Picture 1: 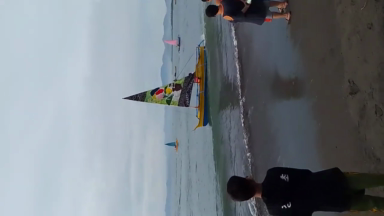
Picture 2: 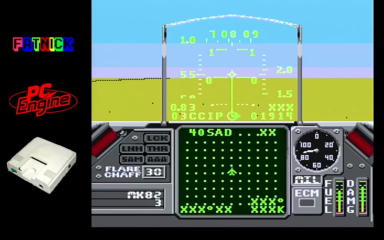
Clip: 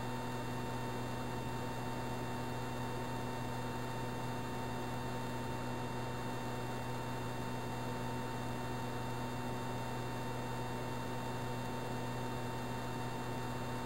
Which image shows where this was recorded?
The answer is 2